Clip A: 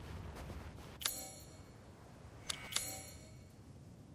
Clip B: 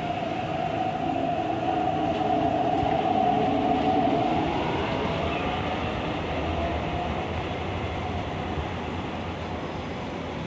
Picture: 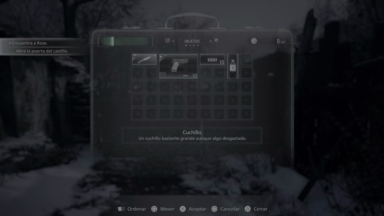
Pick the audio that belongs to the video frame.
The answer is A